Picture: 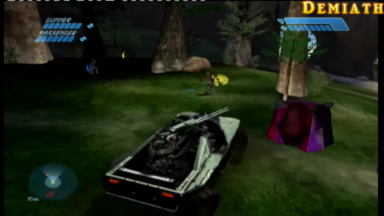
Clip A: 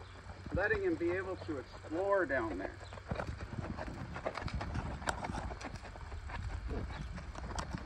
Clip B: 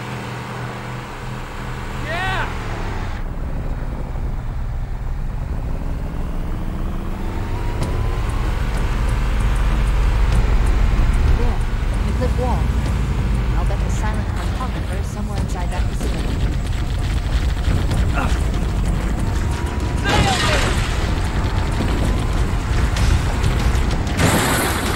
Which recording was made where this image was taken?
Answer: B